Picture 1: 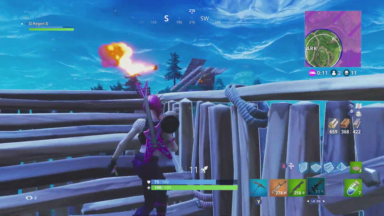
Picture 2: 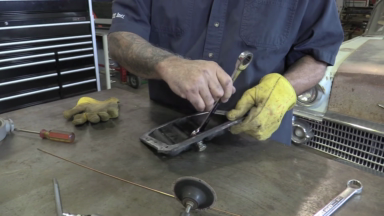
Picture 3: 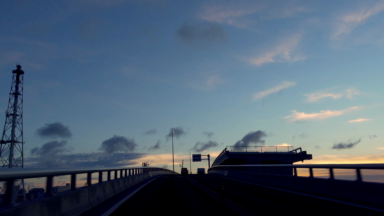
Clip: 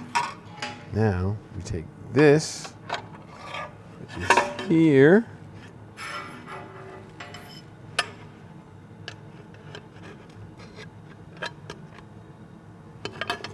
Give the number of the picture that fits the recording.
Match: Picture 2